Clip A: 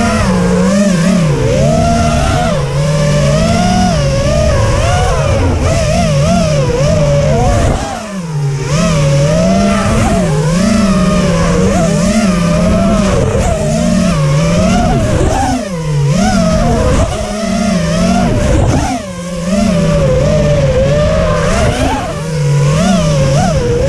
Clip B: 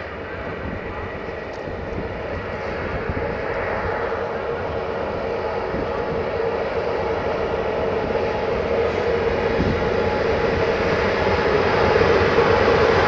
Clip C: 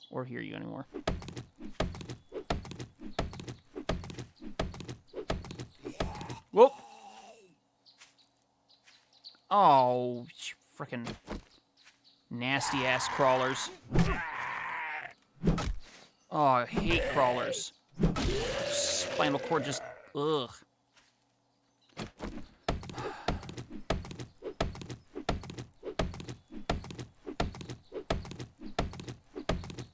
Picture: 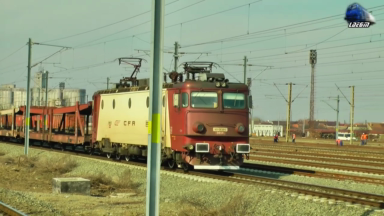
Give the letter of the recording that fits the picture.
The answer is B